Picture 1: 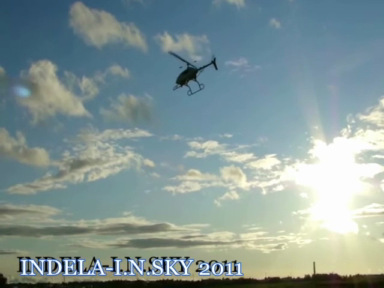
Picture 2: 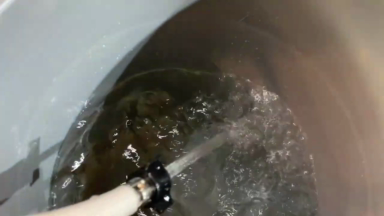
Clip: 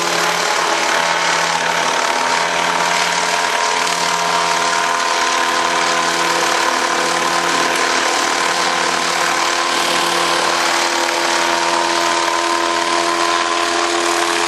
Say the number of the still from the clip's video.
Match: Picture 1